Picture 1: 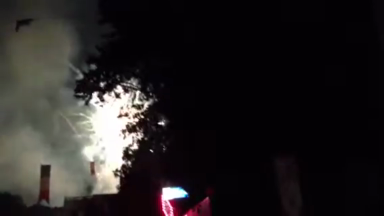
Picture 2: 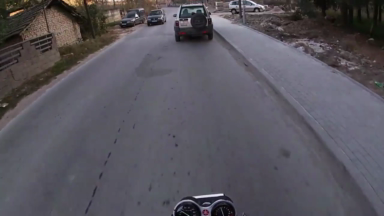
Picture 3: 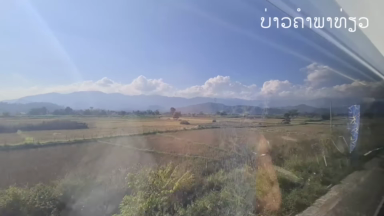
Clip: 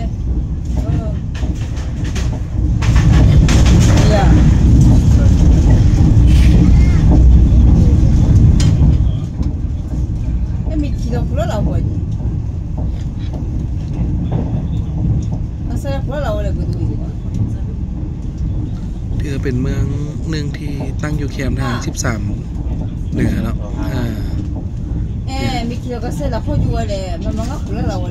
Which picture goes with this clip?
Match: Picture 3